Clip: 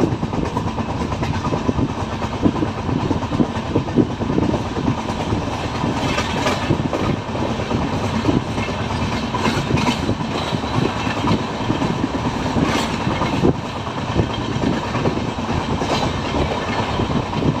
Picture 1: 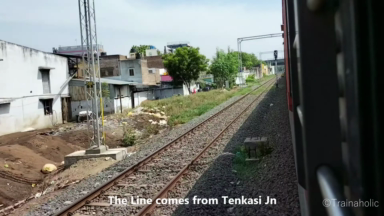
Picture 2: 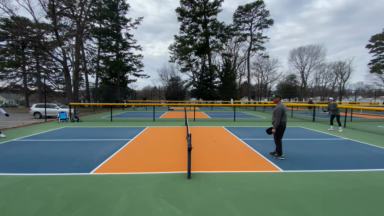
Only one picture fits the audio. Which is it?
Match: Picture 1